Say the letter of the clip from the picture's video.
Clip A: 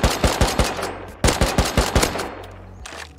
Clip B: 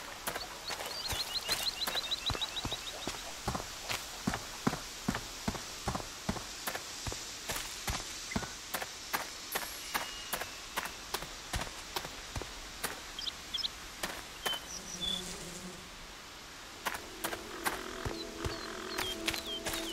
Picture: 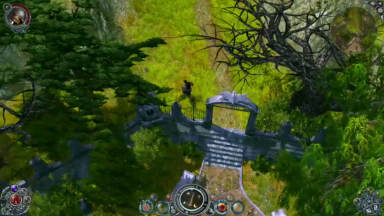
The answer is B